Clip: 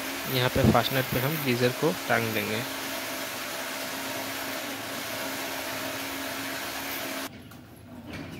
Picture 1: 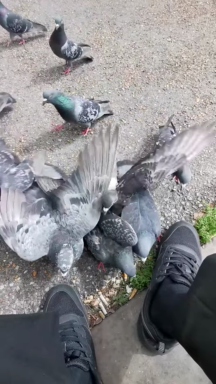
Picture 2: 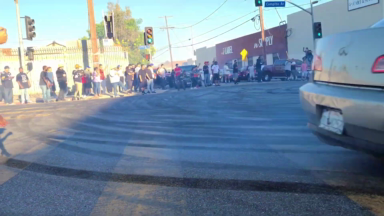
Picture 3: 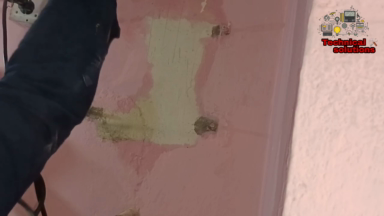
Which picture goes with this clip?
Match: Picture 3